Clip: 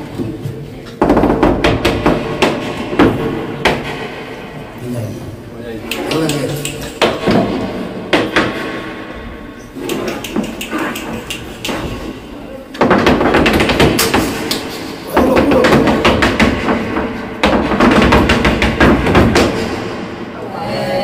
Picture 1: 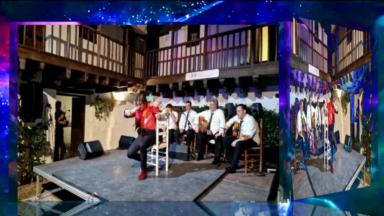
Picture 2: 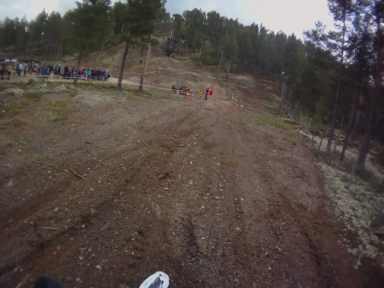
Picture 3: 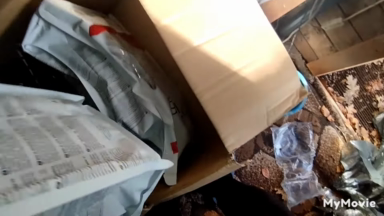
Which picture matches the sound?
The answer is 1